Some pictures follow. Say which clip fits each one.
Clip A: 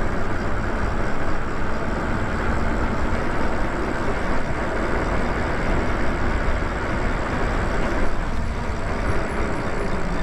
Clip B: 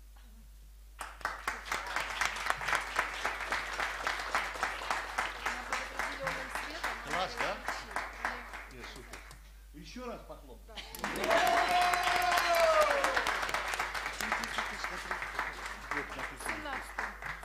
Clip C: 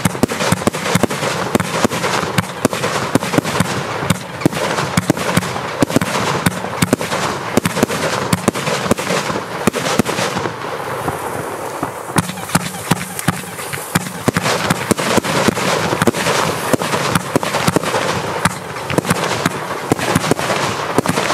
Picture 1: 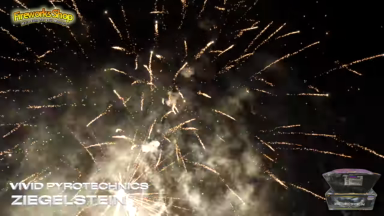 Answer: C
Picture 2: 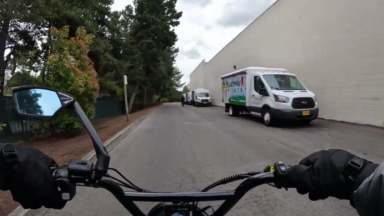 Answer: A